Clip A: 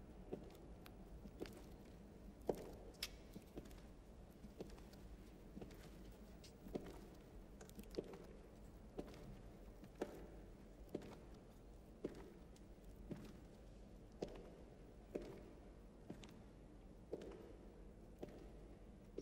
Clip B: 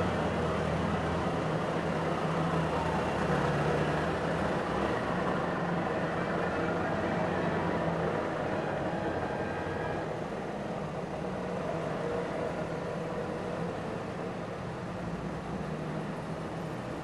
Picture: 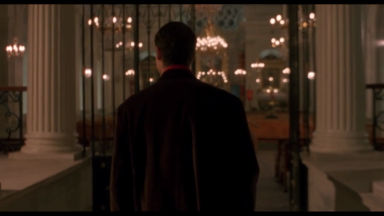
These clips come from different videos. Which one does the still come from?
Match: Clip A